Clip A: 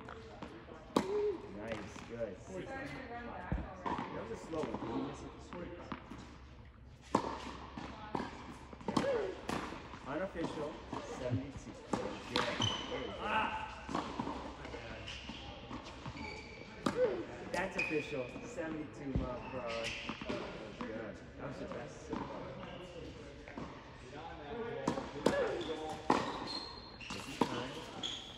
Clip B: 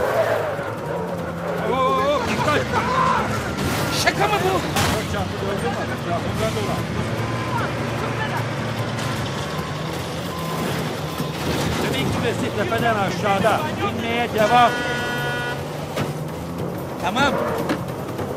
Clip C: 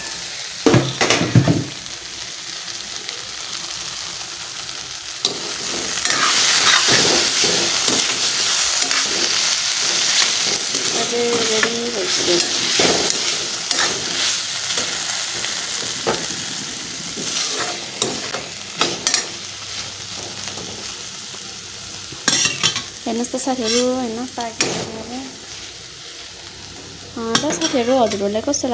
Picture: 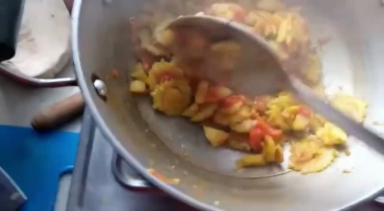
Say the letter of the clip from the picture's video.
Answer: C